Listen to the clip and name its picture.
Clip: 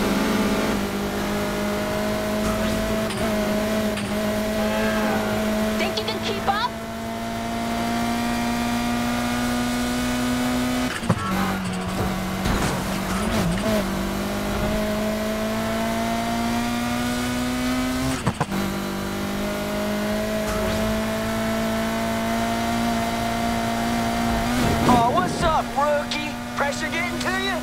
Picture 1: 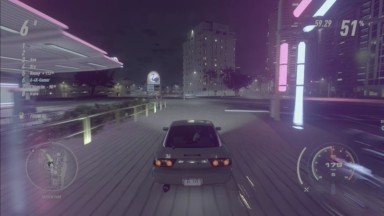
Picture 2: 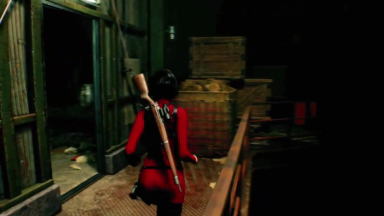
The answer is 1